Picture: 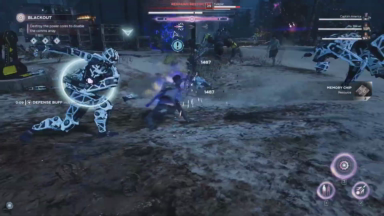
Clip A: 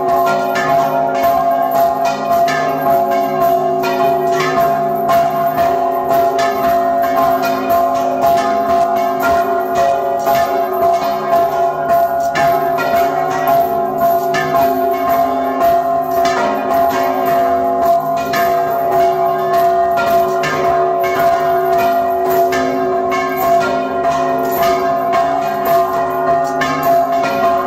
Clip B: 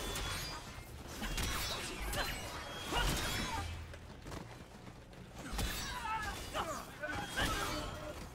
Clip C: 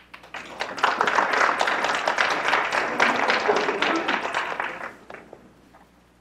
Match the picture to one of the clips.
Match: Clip B